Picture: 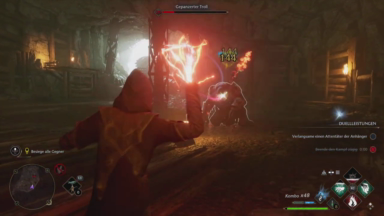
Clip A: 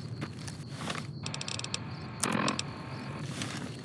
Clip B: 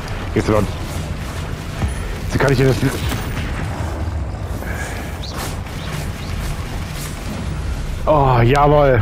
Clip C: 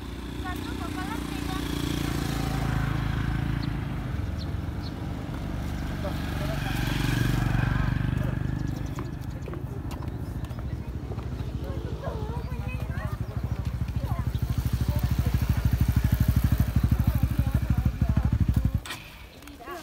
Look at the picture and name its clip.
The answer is B